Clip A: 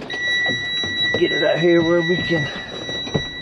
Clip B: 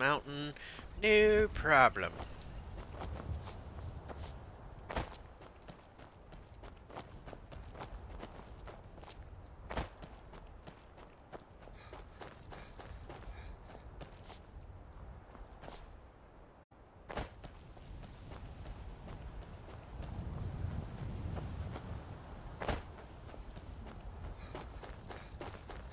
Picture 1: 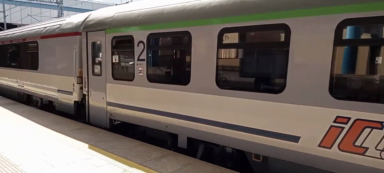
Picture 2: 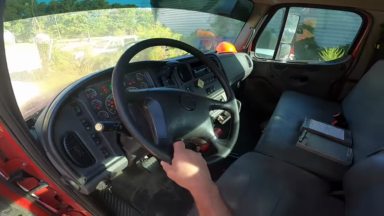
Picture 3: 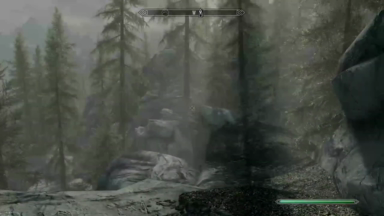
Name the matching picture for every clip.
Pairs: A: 2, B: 3